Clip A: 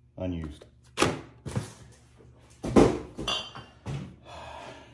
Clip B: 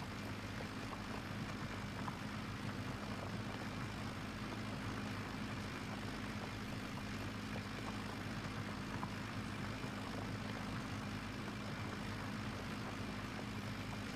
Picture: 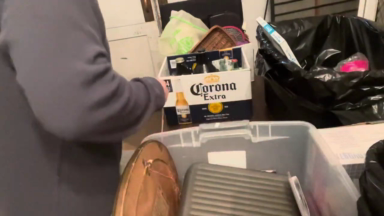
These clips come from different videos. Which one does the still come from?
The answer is A